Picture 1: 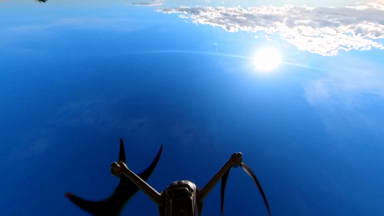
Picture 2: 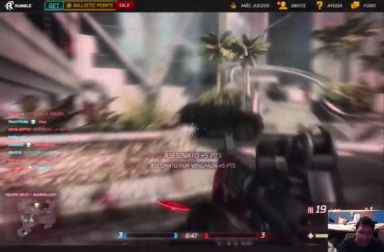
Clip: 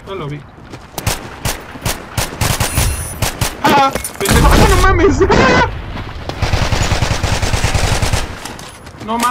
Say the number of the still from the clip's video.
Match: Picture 2